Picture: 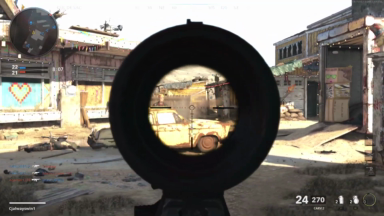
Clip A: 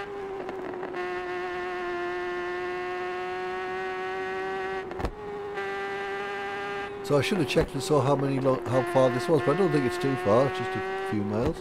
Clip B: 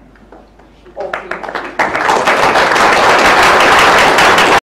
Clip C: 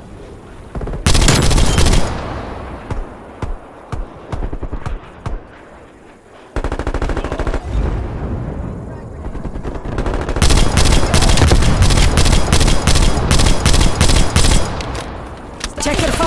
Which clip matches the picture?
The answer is C